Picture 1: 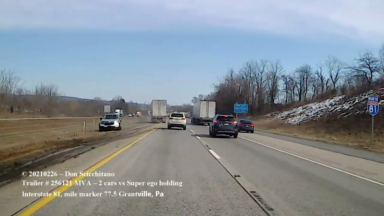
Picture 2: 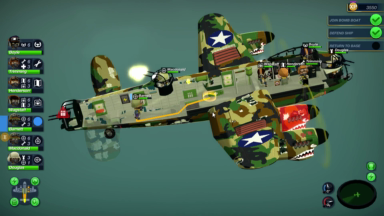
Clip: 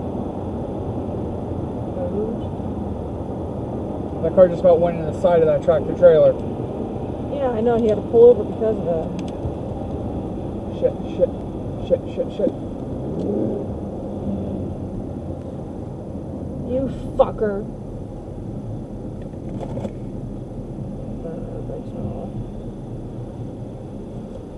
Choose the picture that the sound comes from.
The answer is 1